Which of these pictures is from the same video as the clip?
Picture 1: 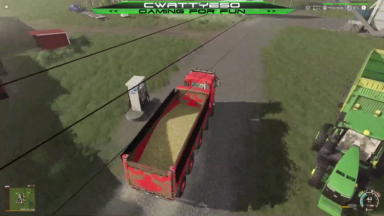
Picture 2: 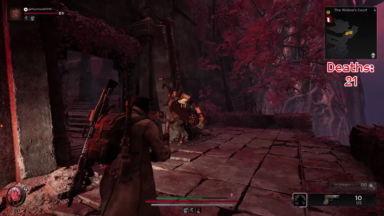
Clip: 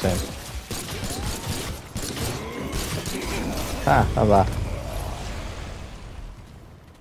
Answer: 2